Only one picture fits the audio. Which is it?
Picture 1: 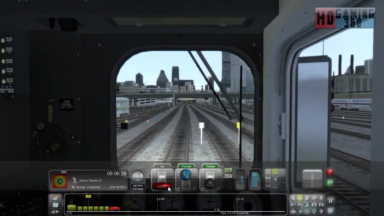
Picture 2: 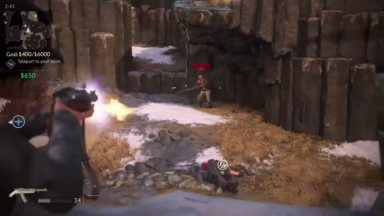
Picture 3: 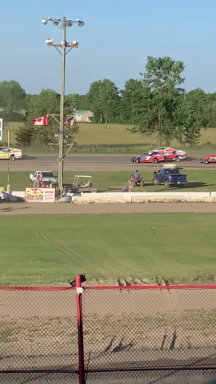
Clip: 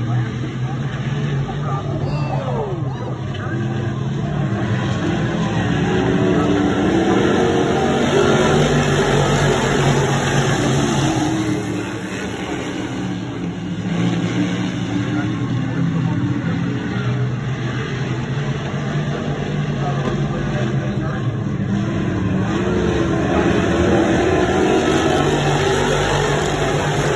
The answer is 3